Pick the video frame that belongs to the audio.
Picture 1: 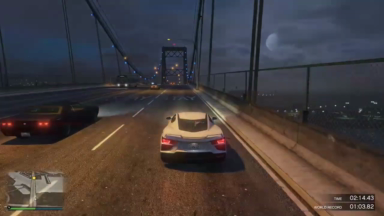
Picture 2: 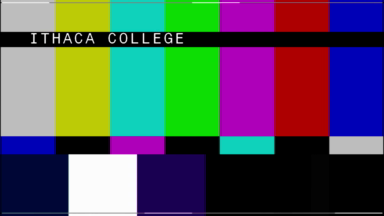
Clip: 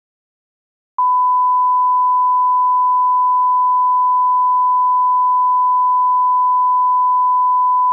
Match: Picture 2